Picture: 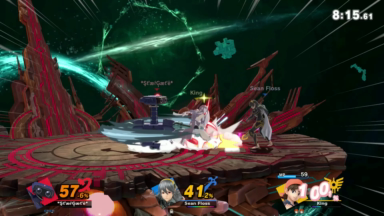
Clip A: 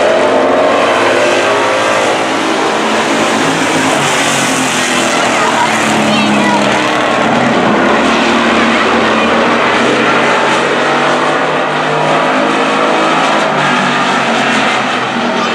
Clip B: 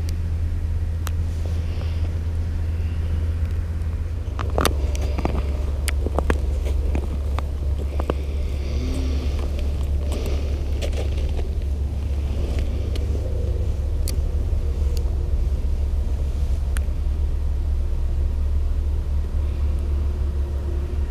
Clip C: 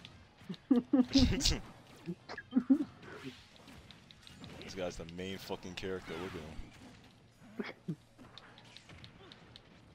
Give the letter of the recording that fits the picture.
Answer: C